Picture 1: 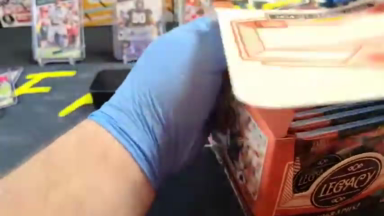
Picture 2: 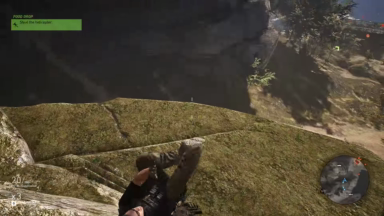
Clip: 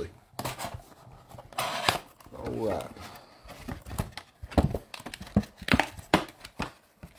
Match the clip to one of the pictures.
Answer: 1